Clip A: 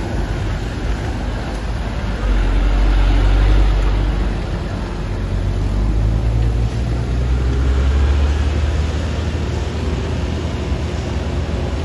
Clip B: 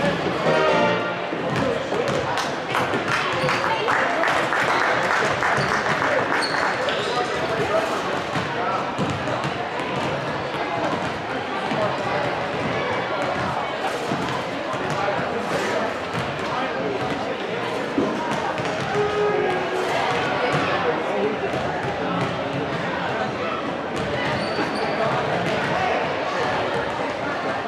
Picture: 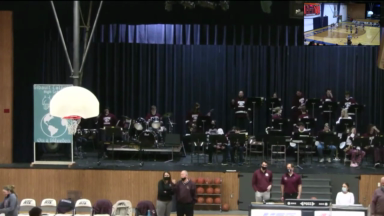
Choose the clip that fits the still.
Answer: B